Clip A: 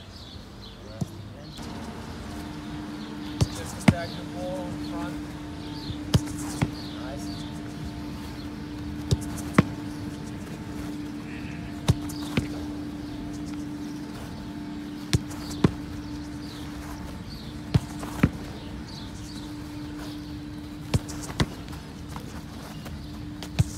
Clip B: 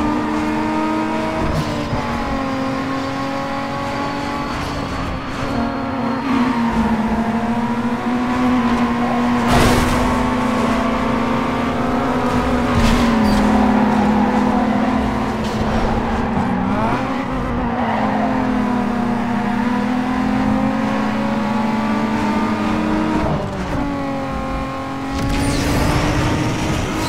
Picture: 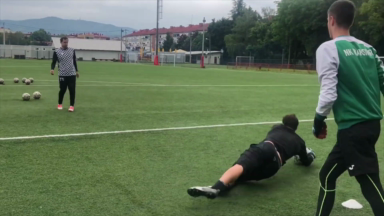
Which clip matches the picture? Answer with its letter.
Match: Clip A